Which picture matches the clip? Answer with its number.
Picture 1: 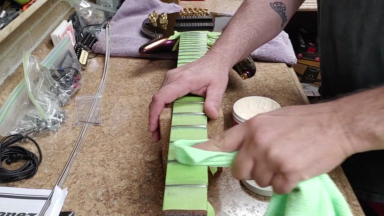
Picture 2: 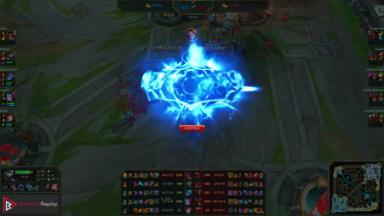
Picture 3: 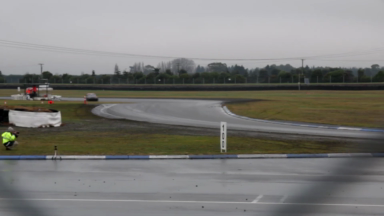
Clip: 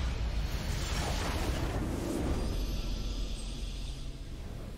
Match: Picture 2